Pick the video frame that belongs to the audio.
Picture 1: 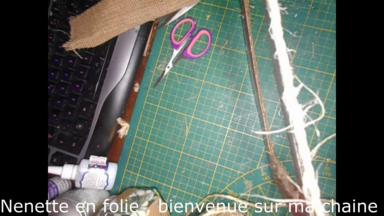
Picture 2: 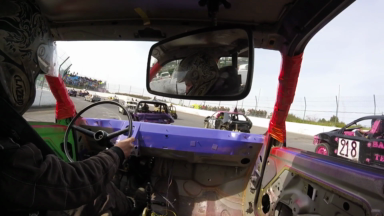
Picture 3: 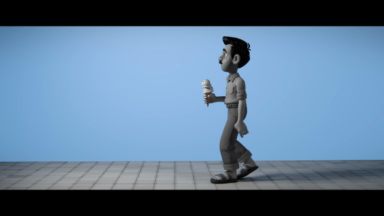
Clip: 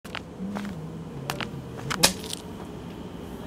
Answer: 3